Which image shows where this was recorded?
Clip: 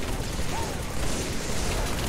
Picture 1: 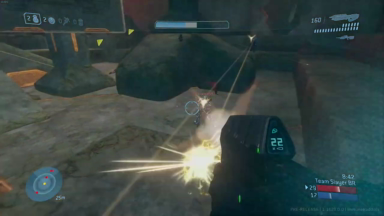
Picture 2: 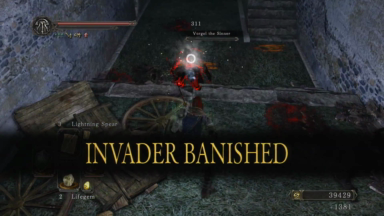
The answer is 1